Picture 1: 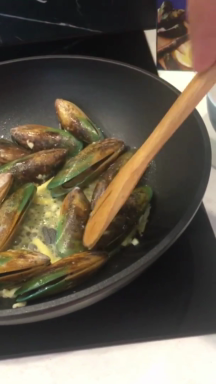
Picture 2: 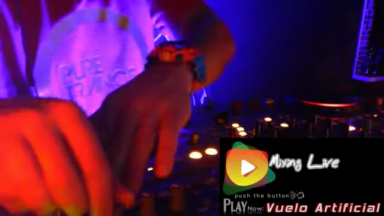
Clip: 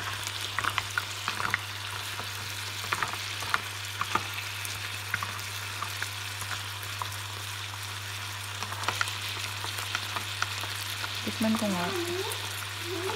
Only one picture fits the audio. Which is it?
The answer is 1